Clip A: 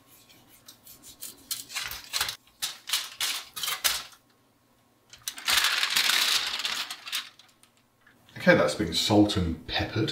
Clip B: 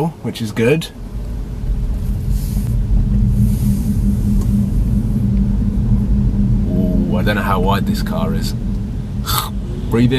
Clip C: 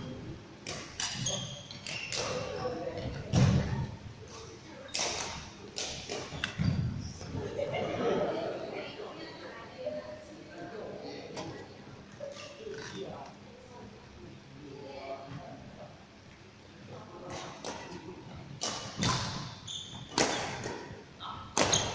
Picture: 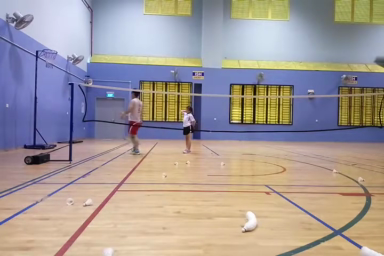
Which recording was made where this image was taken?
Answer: C